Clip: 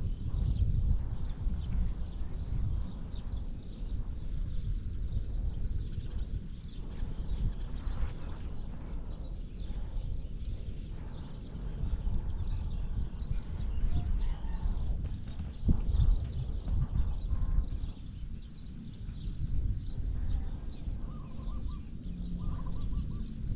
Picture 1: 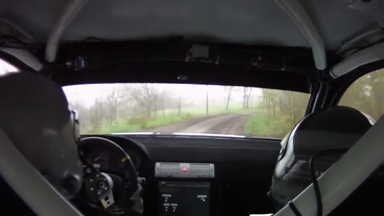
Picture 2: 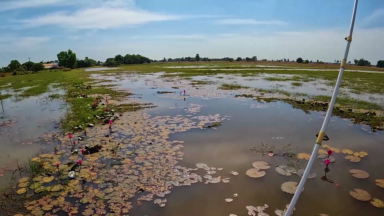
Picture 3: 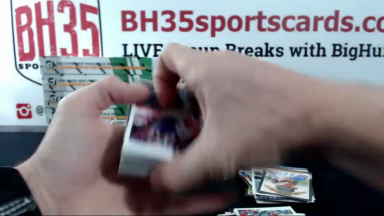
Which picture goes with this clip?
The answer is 2